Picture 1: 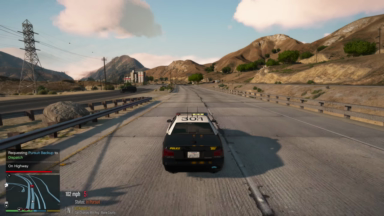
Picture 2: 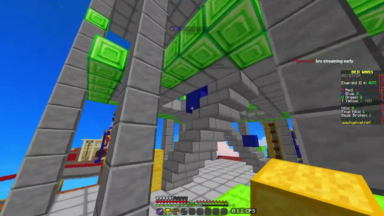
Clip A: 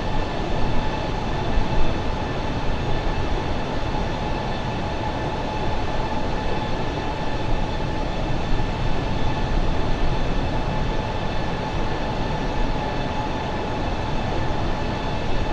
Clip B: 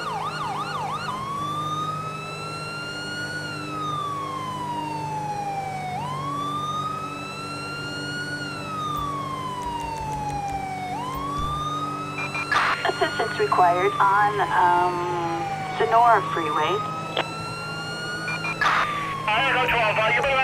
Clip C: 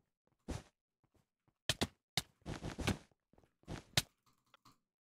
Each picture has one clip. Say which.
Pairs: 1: B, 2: C